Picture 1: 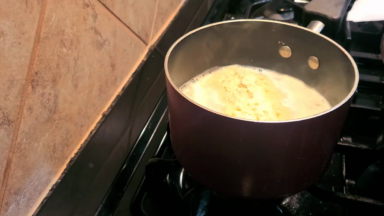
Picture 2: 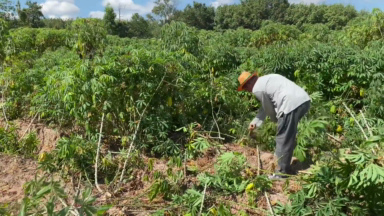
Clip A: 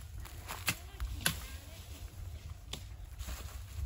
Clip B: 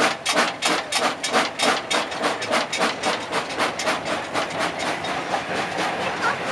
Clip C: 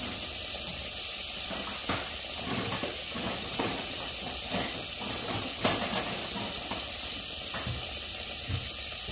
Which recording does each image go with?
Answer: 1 C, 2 A